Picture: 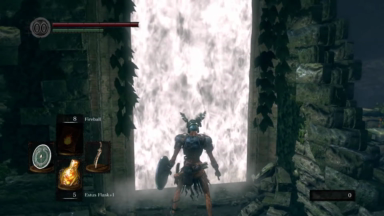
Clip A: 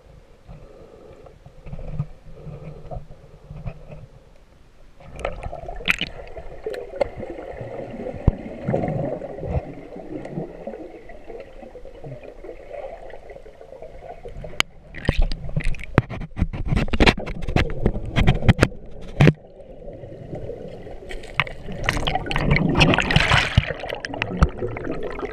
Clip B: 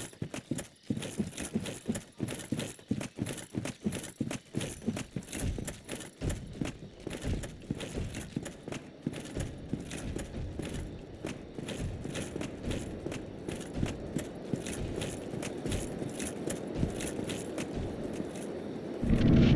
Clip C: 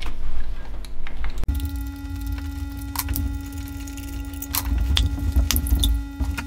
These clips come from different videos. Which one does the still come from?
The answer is B